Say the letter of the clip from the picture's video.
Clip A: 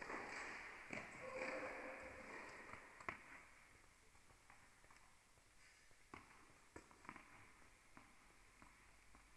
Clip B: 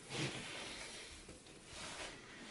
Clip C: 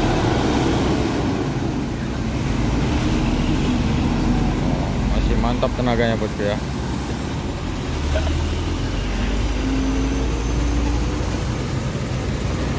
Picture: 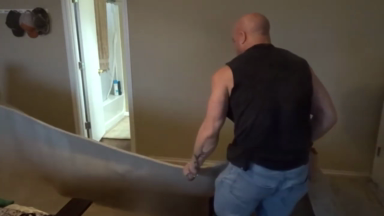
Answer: B